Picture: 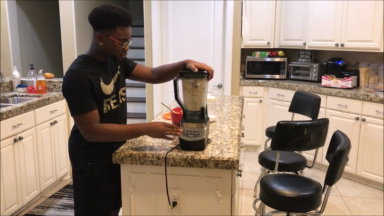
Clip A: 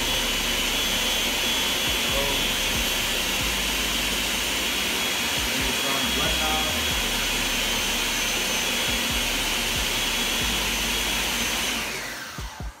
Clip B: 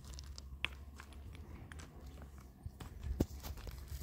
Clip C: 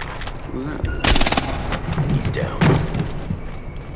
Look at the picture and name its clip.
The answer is A